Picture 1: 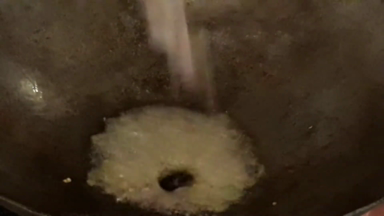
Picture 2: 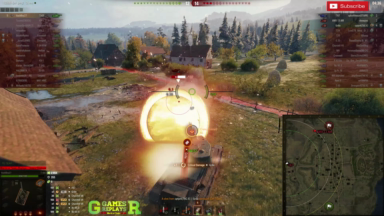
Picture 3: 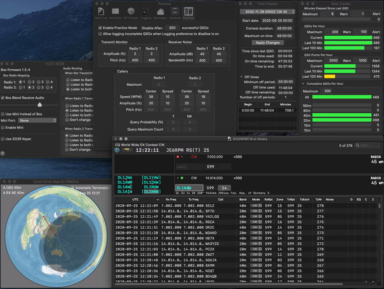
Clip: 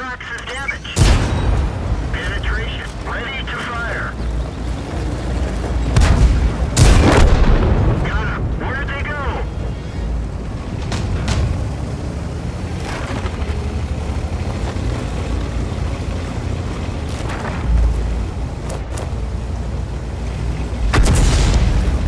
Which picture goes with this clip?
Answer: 2